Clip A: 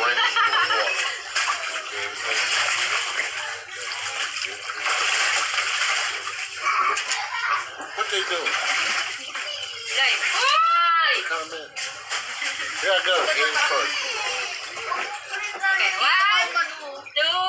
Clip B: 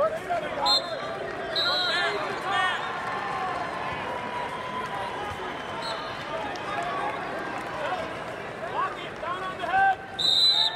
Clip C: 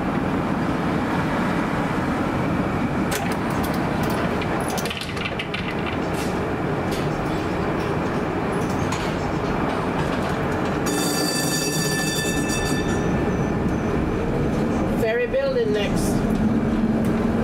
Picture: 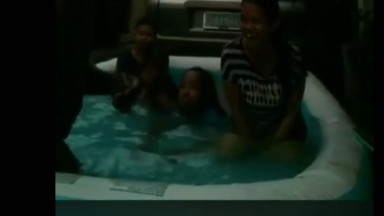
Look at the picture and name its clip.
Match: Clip A